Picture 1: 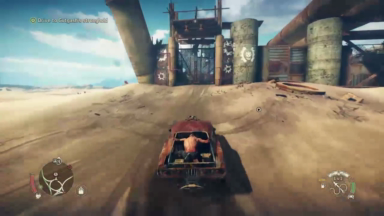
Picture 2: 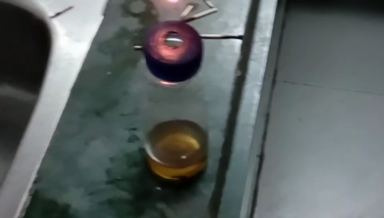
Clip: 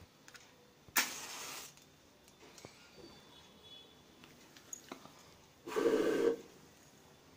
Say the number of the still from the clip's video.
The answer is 2